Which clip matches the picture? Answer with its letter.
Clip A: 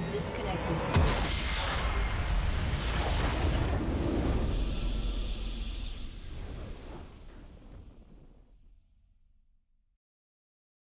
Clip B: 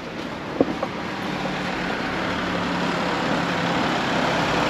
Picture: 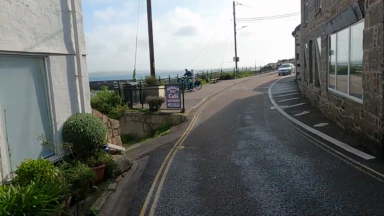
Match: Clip B